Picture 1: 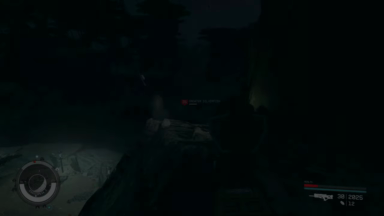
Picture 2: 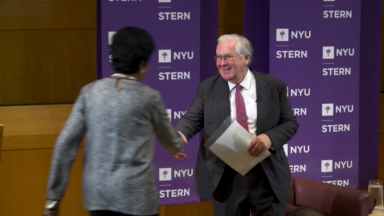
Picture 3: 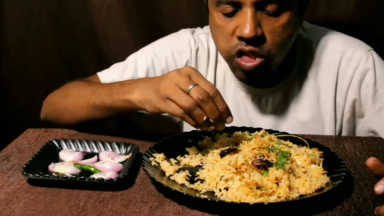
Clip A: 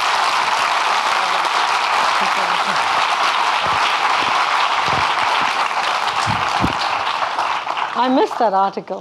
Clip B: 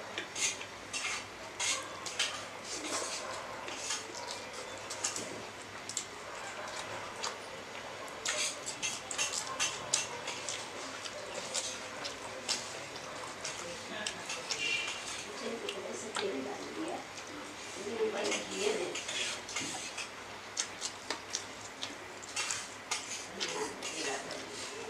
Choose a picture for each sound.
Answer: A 2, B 3